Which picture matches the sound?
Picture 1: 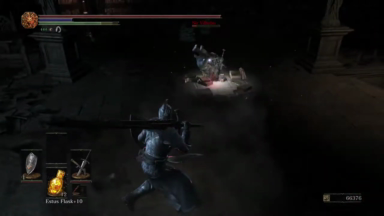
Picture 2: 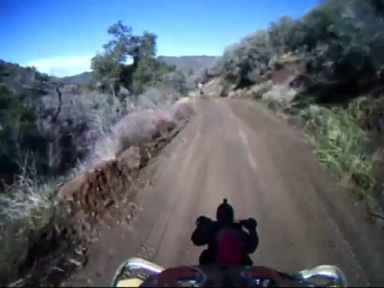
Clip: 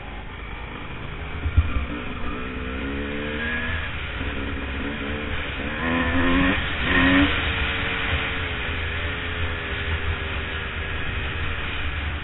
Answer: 2